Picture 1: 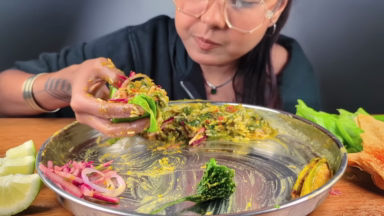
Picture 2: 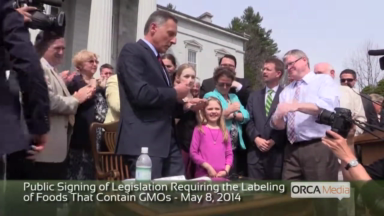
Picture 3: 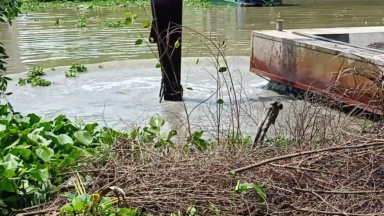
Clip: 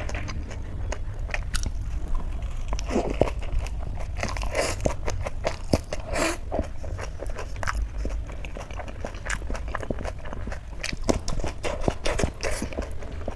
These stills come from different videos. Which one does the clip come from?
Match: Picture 1